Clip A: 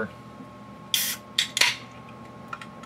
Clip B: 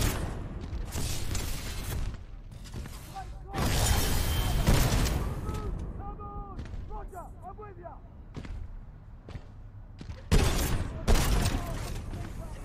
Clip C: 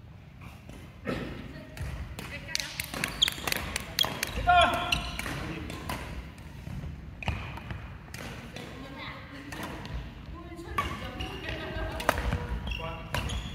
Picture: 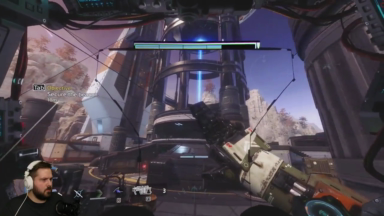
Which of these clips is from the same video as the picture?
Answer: B